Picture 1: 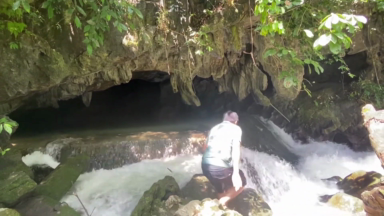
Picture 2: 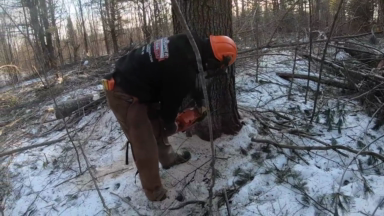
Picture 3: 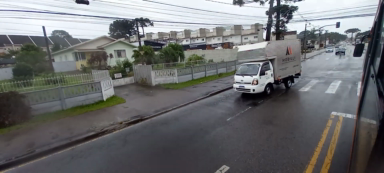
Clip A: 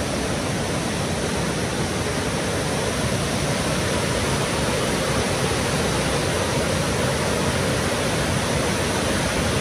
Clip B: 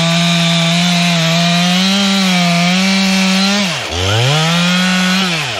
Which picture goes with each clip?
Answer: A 1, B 2